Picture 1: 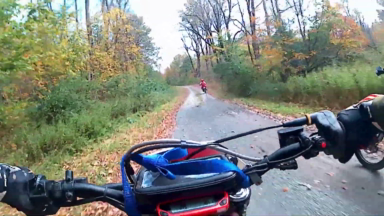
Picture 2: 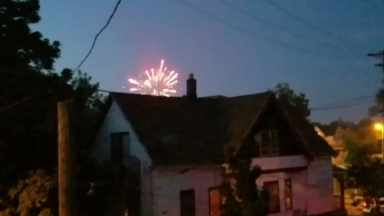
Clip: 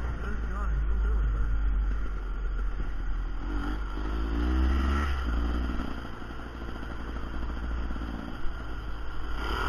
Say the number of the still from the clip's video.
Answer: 1